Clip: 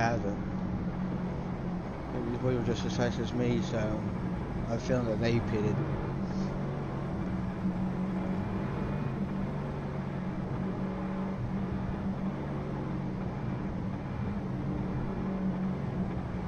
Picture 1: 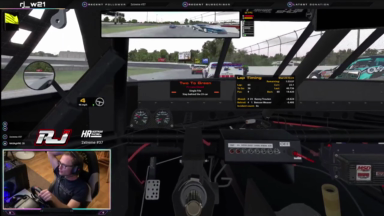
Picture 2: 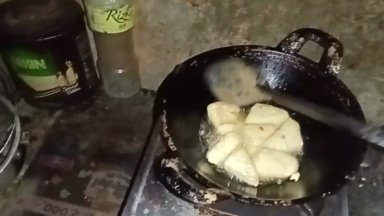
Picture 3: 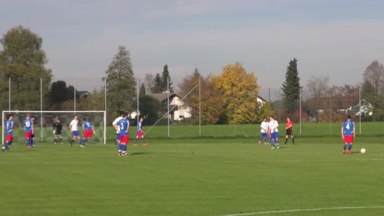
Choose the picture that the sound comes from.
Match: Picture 1